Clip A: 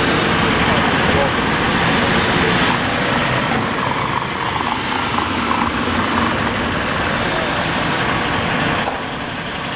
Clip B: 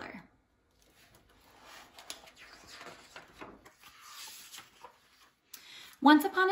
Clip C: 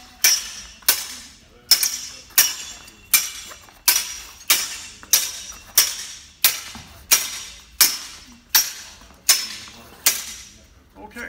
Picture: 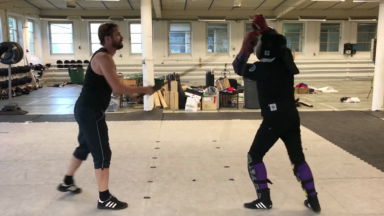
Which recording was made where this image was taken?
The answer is C